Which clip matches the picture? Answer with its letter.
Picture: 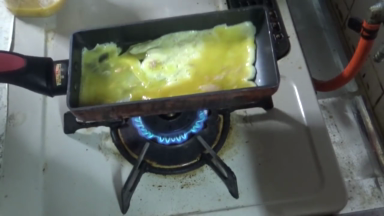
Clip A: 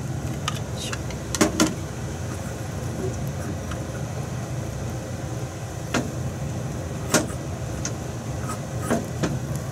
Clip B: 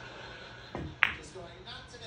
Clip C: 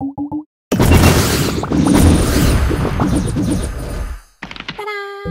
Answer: A